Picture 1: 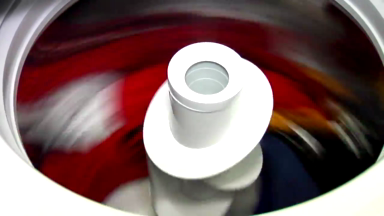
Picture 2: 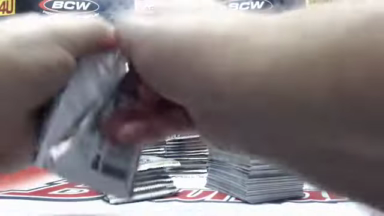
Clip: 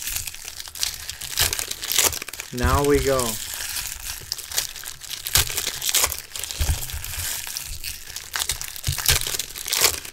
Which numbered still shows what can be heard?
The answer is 2